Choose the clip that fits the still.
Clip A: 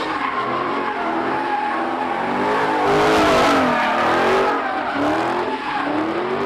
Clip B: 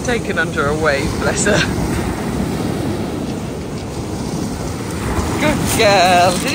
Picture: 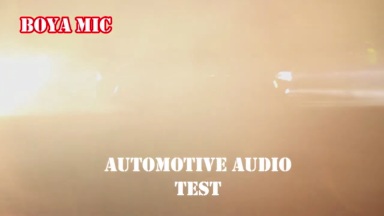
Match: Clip A